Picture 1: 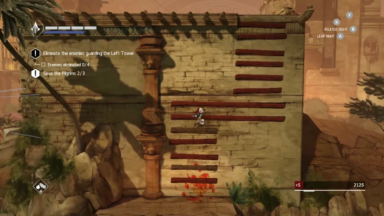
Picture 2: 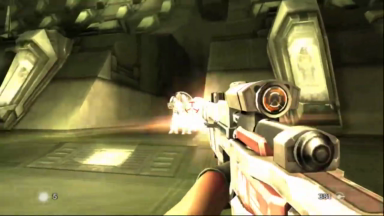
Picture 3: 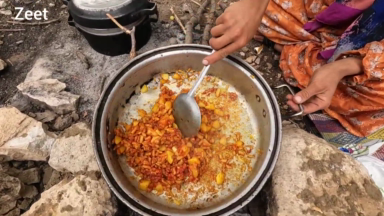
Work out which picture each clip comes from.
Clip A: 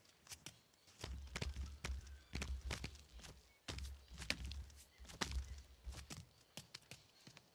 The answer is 1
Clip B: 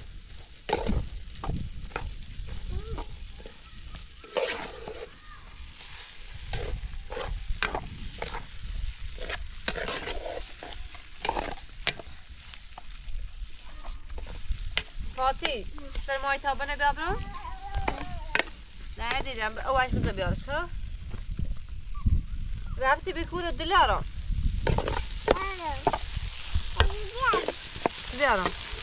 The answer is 3